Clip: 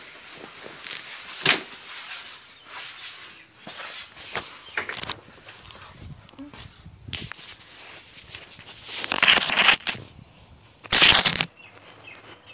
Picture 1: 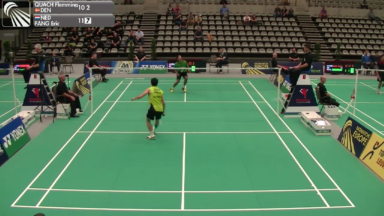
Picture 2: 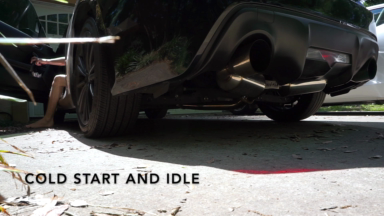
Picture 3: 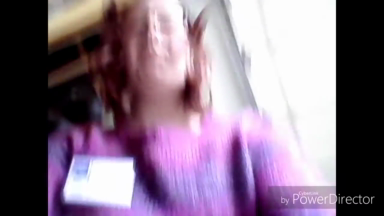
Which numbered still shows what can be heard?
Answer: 3